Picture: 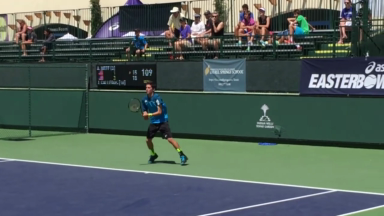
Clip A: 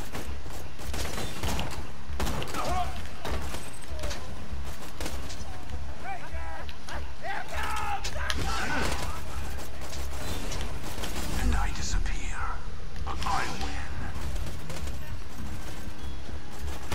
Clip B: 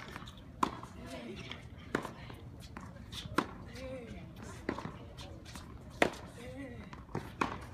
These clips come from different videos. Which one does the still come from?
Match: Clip B